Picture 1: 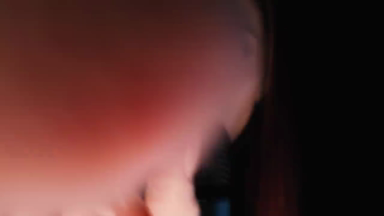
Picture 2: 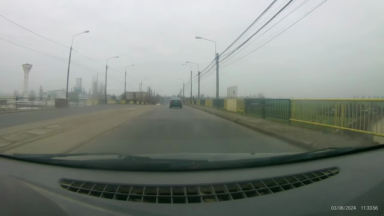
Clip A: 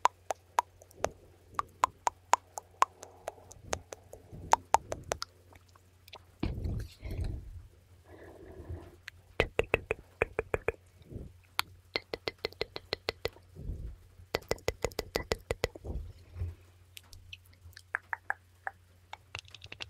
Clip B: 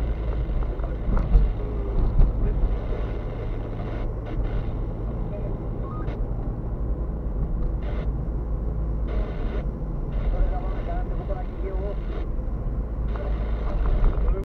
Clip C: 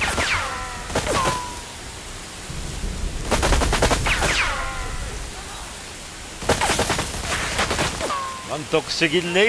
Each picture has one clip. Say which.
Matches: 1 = A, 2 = B